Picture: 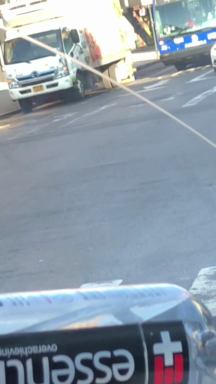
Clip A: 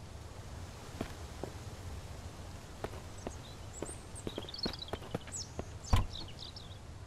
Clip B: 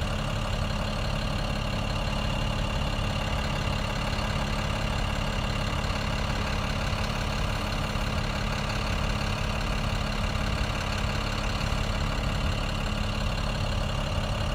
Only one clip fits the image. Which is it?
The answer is B